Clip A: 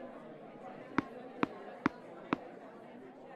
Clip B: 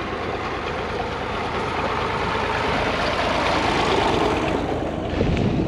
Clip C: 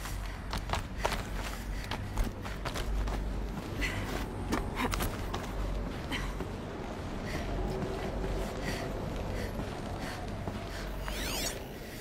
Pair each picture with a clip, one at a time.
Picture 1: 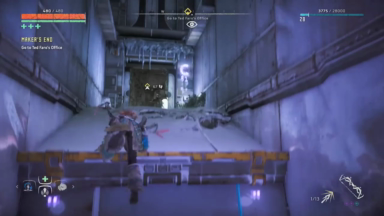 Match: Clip C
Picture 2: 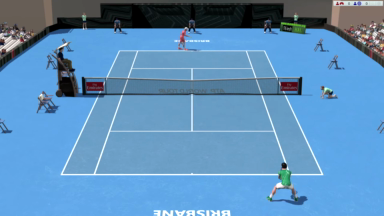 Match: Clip A